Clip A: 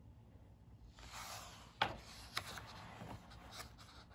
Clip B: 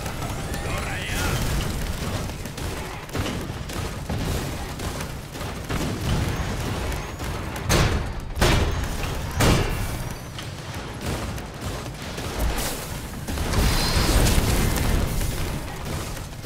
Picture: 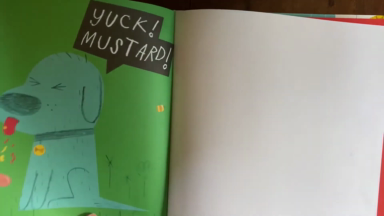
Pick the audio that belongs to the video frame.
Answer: A